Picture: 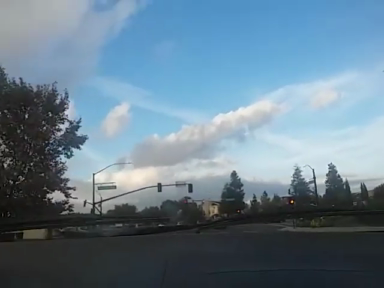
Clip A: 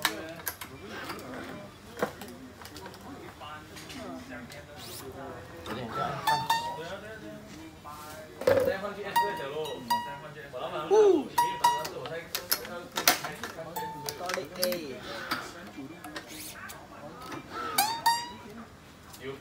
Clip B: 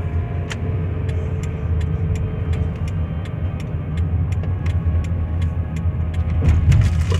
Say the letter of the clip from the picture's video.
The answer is B